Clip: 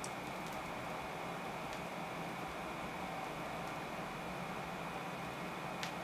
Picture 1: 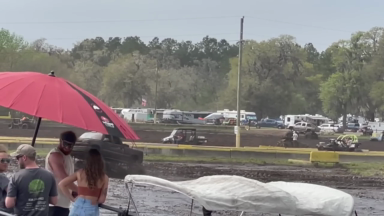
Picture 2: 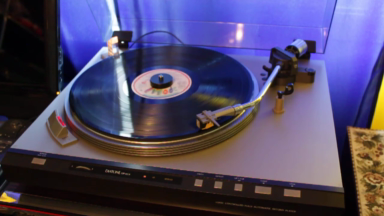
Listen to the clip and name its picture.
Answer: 2